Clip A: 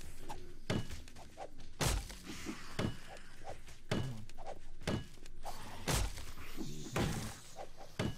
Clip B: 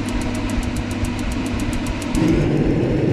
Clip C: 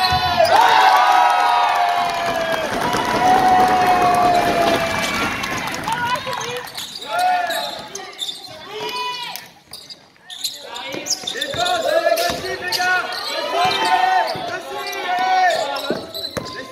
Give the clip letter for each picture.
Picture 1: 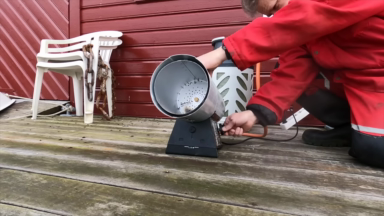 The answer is B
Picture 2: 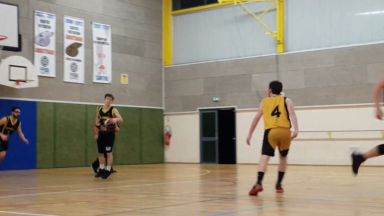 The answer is C